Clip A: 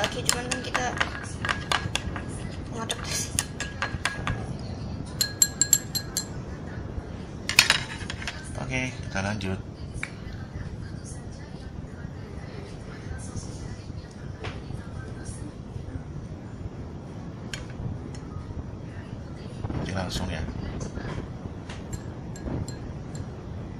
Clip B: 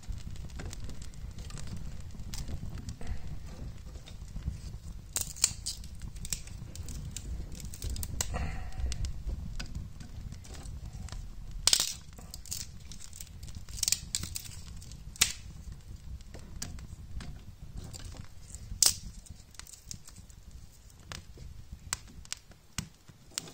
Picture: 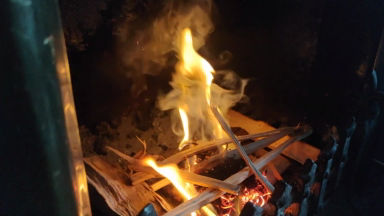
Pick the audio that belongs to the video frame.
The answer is B